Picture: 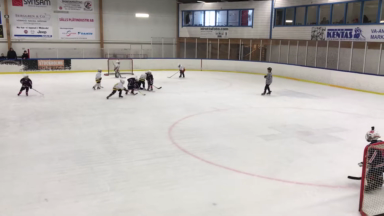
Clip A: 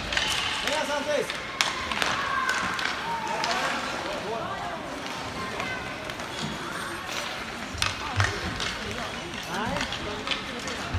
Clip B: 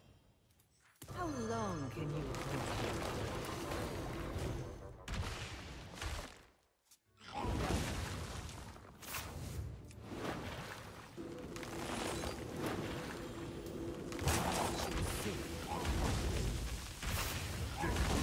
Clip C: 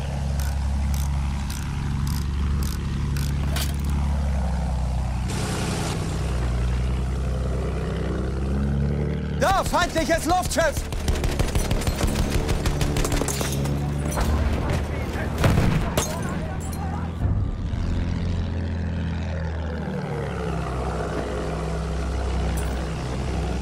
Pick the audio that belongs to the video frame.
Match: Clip A